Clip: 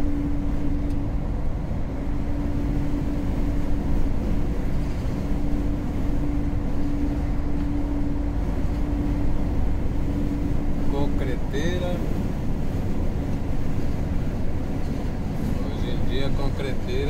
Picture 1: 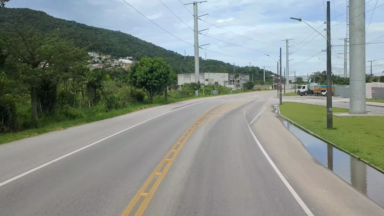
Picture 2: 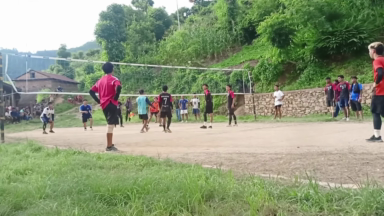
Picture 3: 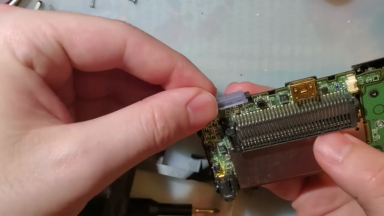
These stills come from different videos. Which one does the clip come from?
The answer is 1